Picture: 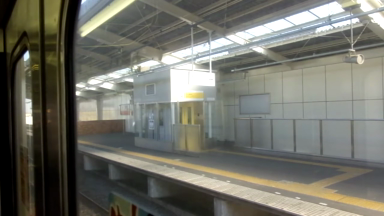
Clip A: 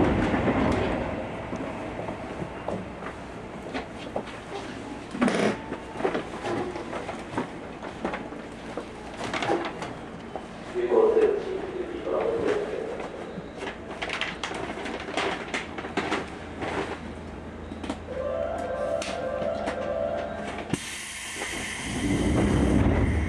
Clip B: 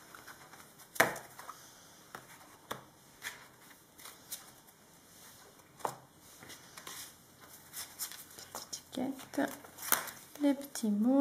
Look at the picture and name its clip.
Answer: A